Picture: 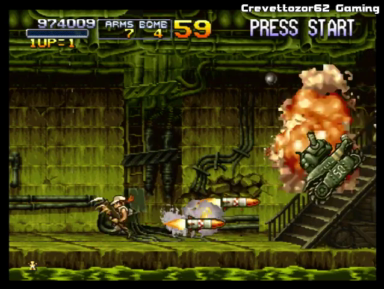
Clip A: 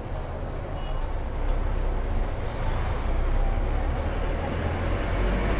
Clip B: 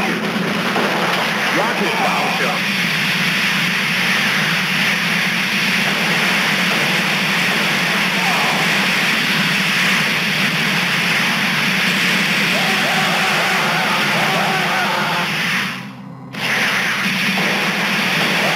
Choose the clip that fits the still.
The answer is B